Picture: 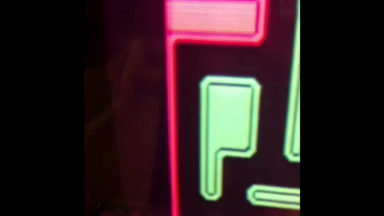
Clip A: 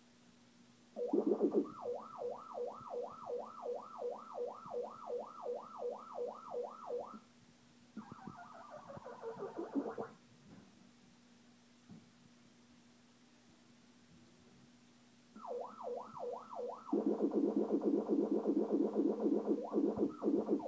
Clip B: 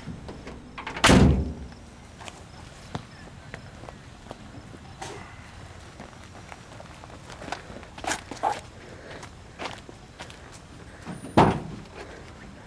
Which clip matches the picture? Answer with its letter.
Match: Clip A